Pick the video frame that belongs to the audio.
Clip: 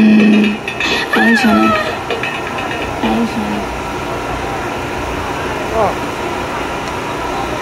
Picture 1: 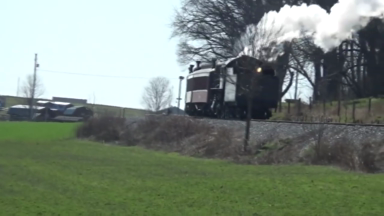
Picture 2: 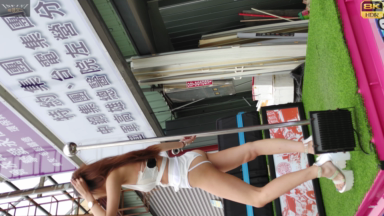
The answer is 2